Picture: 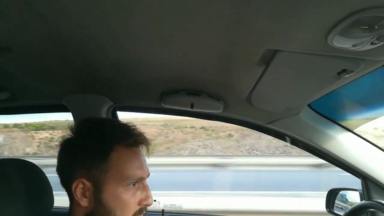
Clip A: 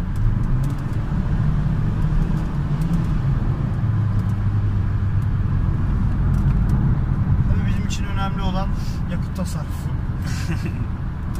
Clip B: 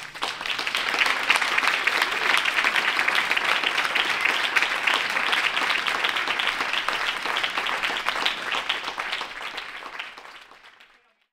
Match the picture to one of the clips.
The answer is A